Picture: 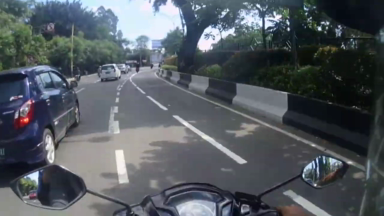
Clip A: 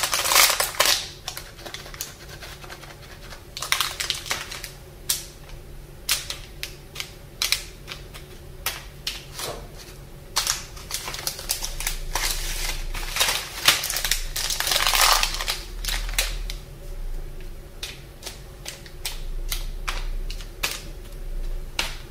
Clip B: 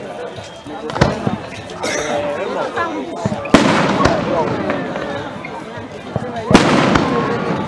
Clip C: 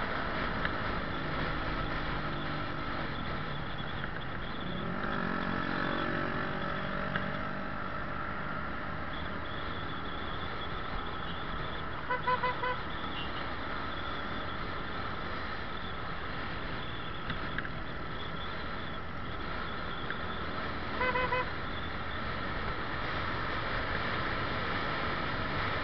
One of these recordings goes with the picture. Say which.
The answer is C